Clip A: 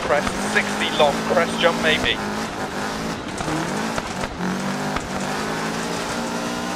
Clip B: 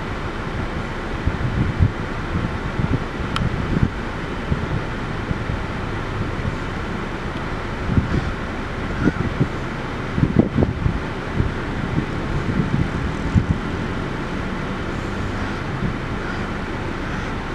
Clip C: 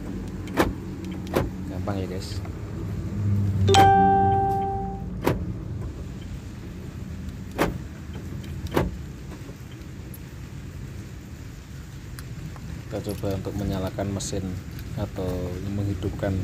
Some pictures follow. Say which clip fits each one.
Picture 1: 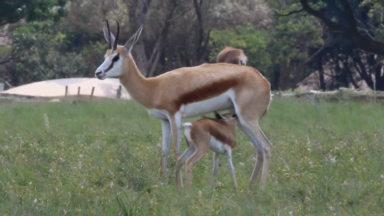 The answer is B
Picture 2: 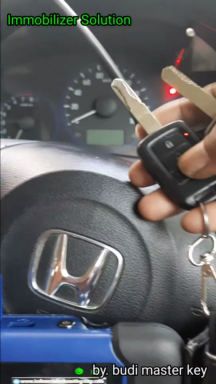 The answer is C